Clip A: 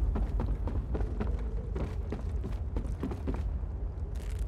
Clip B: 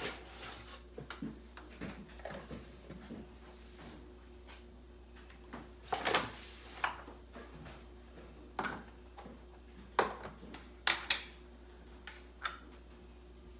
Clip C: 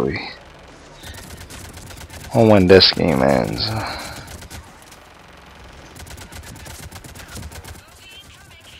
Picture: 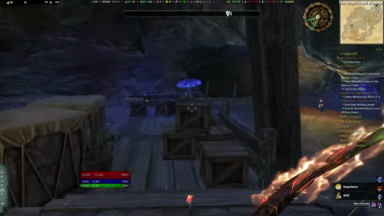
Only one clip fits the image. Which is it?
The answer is A